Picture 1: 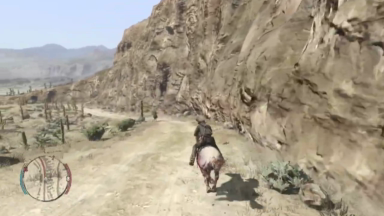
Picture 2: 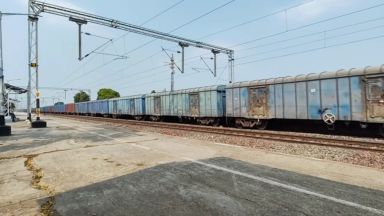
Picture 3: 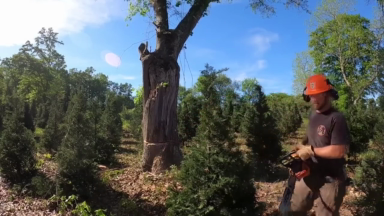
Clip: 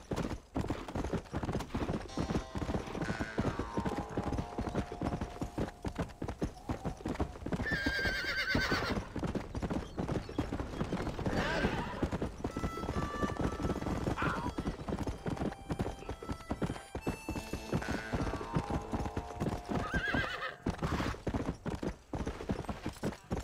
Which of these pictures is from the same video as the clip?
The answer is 1